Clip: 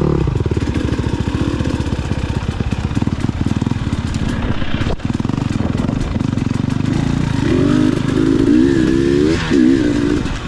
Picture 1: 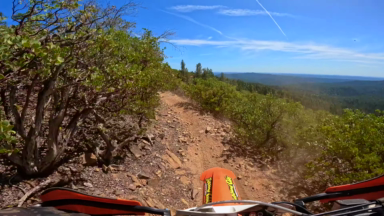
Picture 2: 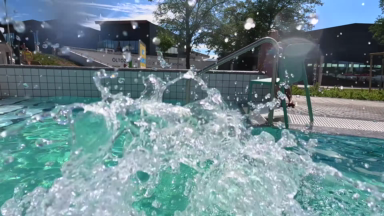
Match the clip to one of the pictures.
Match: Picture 1